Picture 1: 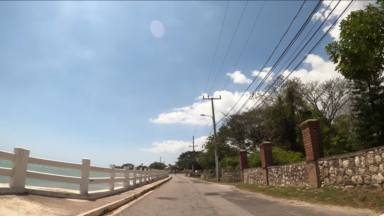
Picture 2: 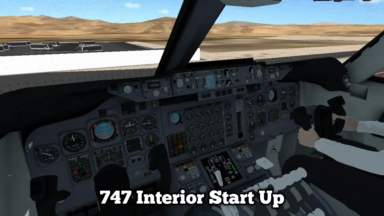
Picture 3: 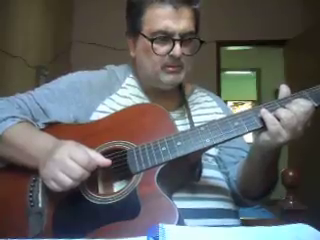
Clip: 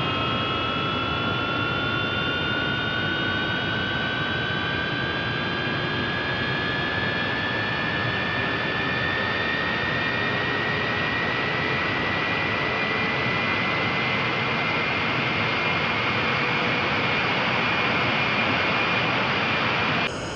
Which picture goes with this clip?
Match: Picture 2